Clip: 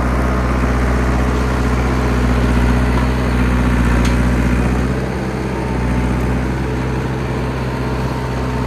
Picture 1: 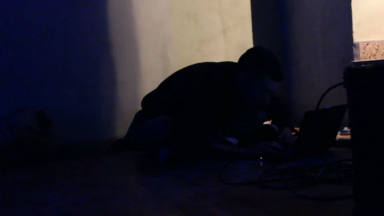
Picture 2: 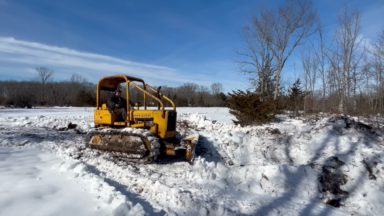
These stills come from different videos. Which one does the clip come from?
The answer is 2